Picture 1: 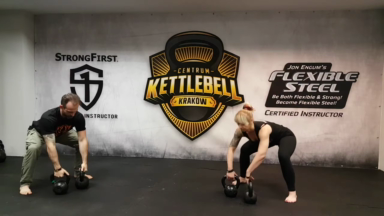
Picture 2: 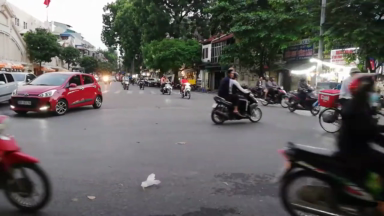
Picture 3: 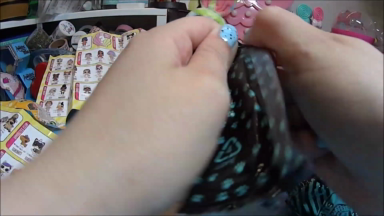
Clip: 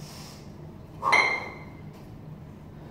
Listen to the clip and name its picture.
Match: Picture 1